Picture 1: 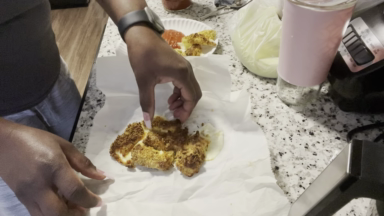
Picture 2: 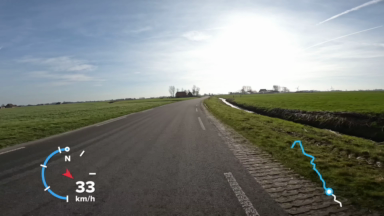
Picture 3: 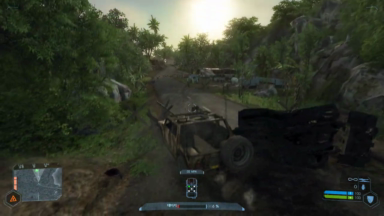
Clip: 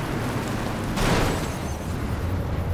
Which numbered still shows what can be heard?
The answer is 3